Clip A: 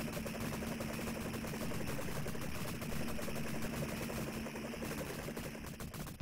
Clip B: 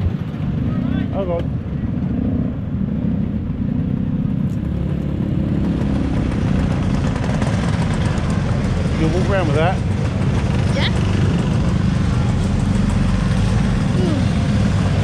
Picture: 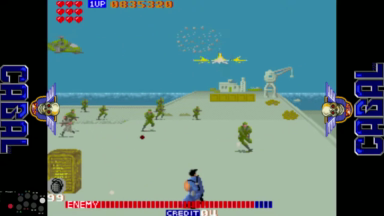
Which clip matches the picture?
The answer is A